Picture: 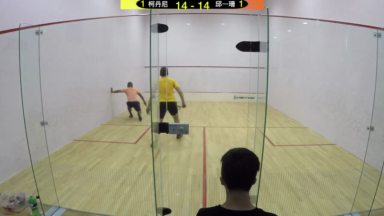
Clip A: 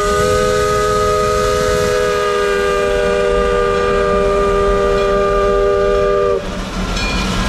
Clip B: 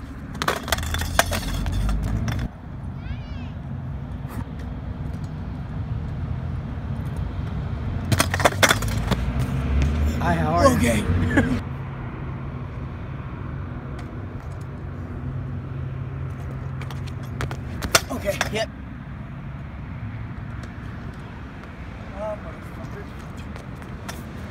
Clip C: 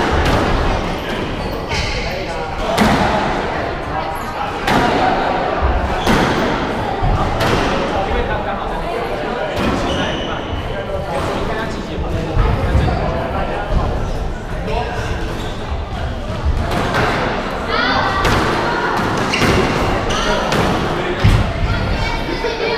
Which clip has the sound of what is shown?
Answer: C